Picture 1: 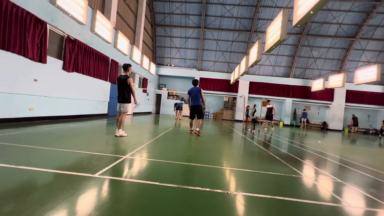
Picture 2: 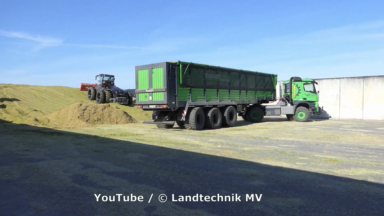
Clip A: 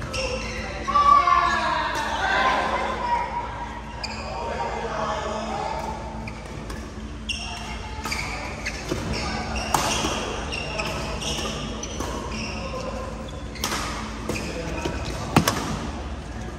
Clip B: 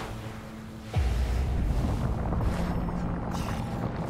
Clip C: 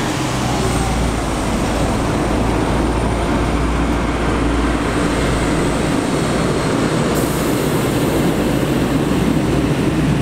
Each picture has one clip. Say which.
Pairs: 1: A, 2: C